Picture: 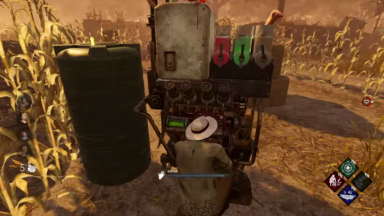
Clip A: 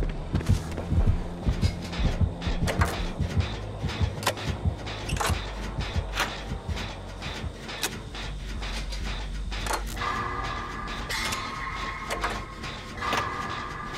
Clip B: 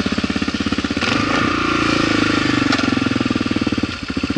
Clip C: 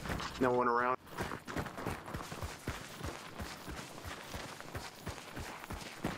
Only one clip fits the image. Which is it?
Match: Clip A